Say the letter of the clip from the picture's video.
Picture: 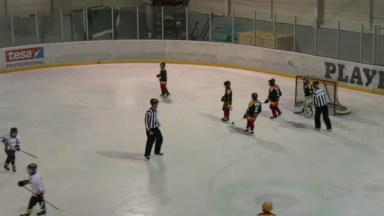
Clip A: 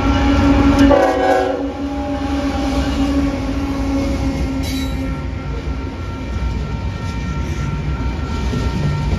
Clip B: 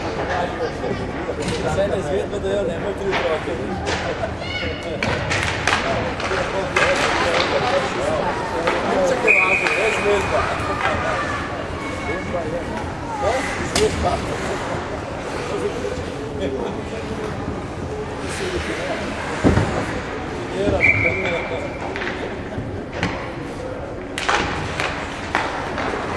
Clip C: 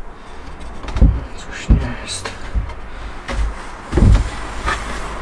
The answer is B